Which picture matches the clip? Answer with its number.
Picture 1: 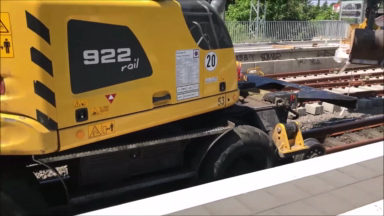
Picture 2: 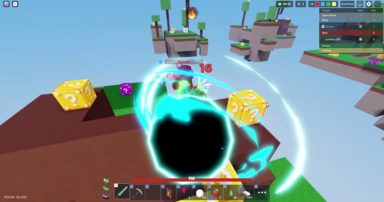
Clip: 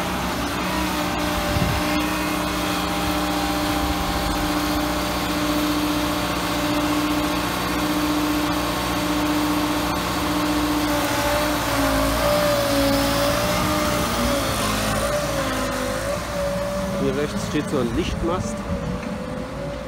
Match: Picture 1